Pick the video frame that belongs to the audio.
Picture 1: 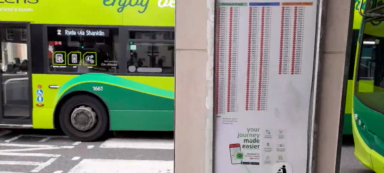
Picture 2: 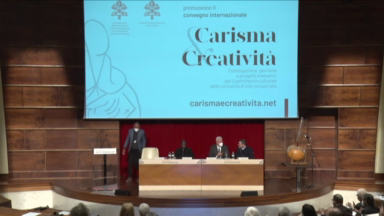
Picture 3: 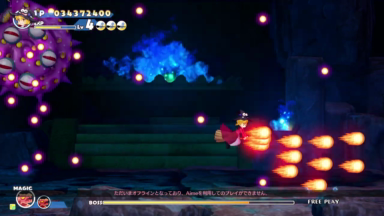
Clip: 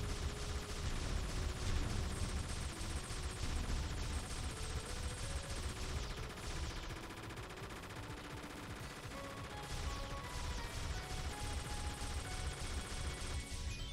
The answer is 3